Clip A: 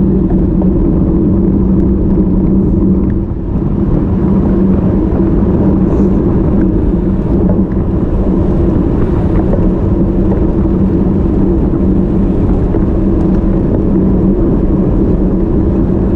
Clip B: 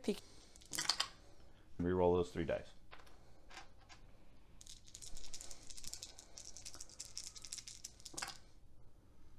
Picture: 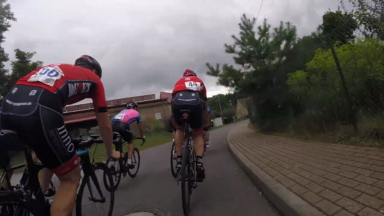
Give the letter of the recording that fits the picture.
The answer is A